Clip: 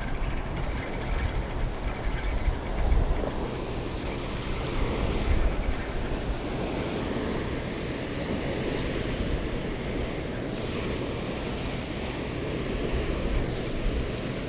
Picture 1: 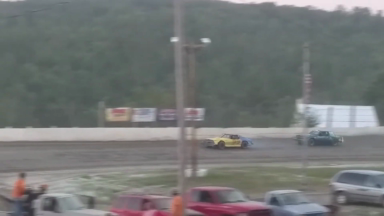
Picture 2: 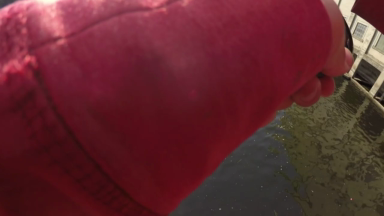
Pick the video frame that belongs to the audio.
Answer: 2